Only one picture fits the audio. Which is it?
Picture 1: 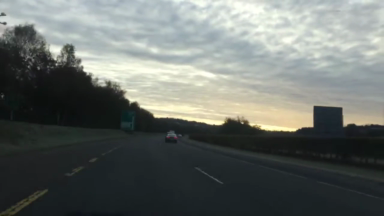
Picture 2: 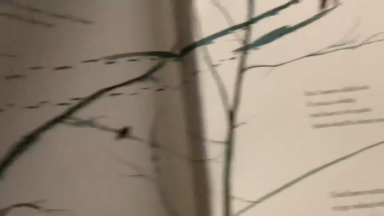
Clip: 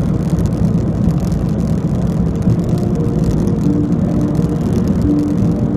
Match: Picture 1